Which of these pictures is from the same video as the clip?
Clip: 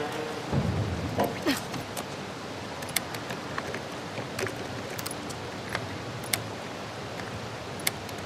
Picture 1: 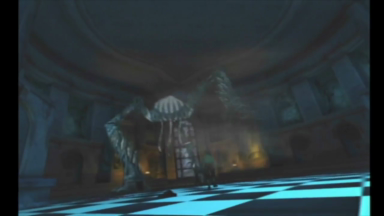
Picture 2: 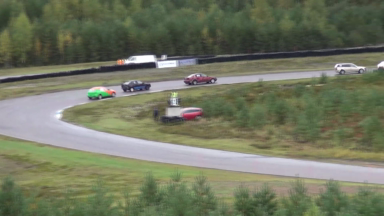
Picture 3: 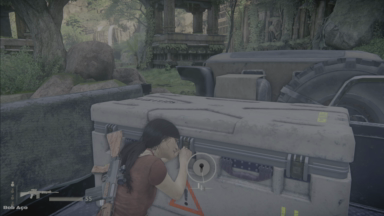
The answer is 3